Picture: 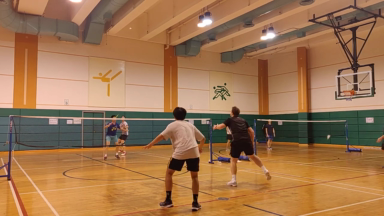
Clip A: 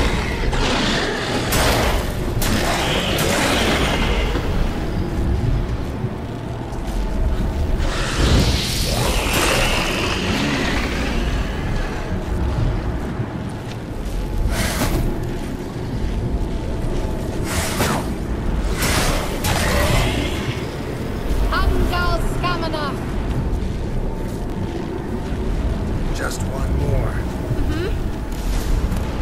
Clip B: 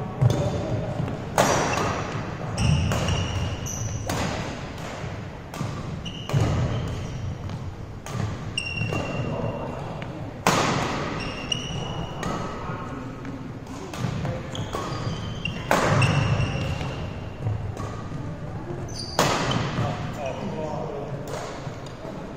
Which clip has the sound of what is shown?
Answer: B